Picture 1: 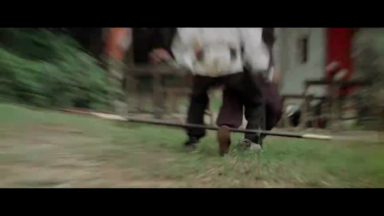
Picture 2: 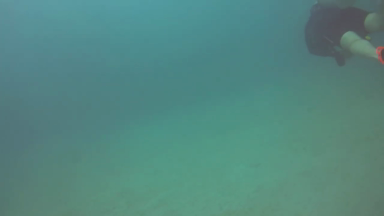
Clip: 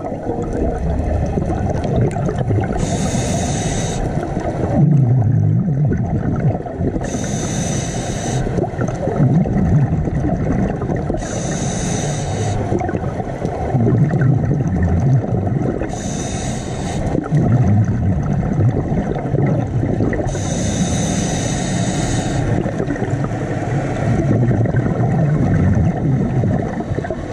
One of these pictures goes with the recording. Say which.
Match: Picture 2